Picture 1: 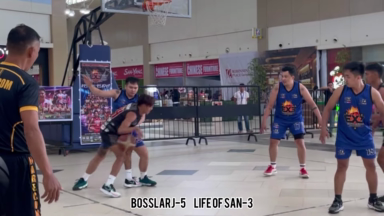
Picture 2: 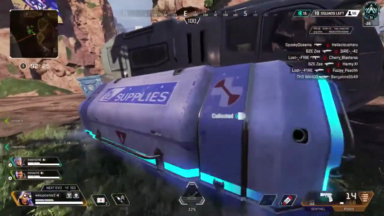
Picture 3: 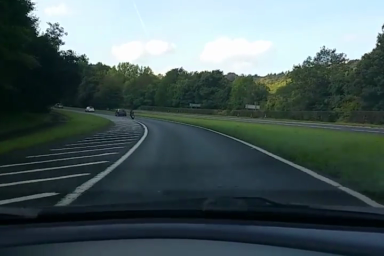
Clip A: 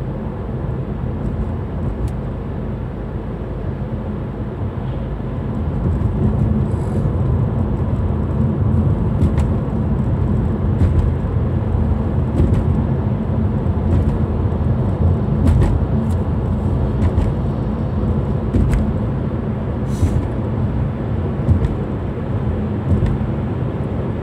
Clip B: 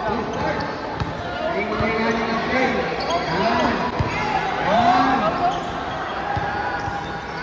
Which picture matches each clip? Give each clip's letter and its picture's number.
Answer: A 3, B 1